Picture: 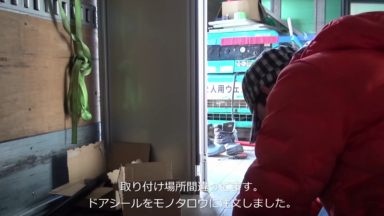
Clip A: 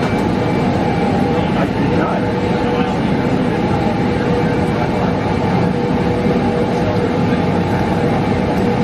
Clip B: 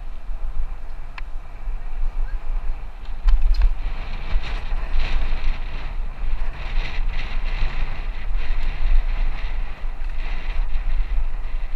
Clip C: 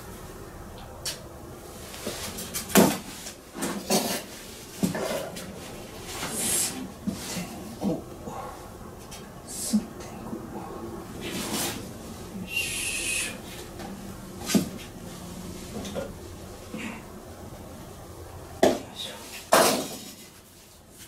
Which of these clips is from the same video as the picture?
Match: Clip C